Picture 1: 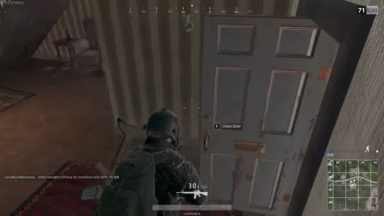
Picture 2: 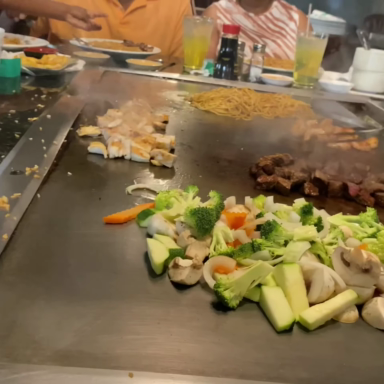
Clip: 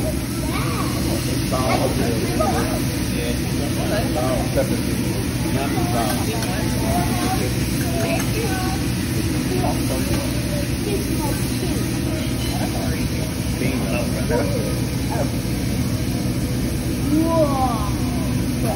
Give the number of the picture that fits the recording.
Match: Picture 2